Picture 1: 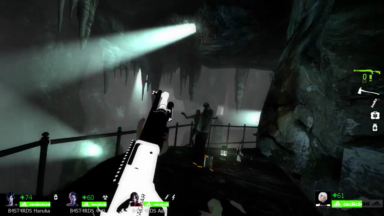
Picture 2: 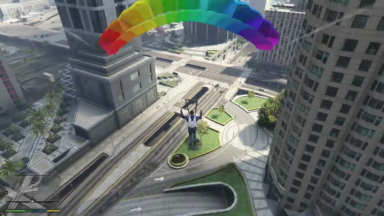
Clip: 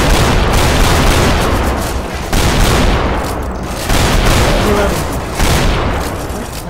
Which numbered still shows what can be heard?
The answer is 1